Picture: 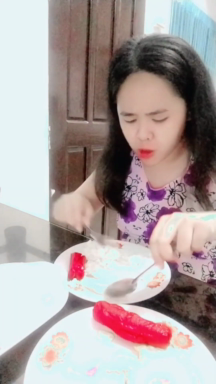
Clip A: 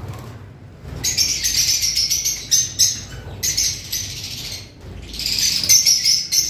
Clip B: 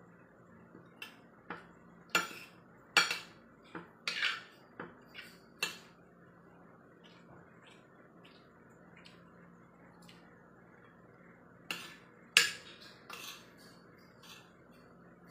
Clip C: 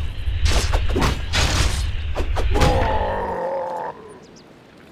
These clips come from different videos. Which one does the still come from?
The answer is B